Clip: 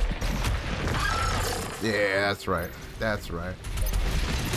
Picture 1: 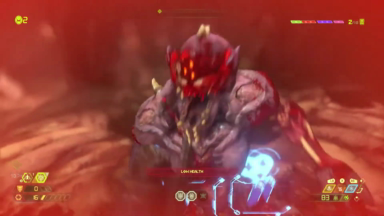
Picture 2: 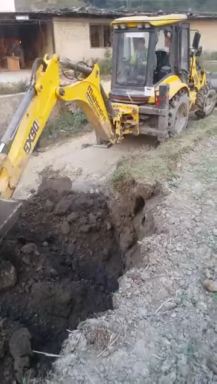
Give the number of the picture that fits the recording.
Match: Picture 1